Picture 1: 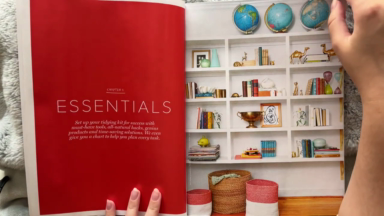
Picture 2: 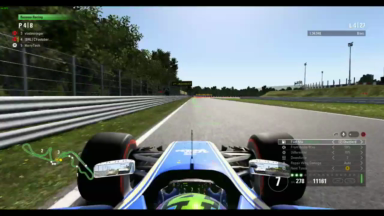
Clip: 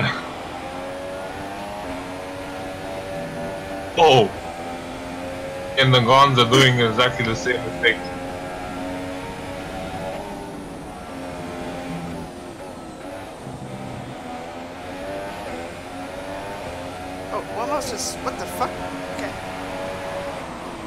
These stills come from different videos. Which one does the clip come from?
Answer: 2